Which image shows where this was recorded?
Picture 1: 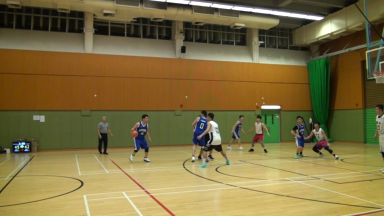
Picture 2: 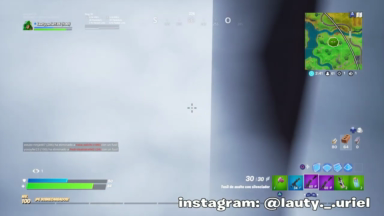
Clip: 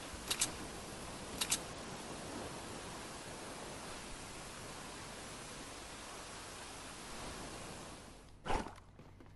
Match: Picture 2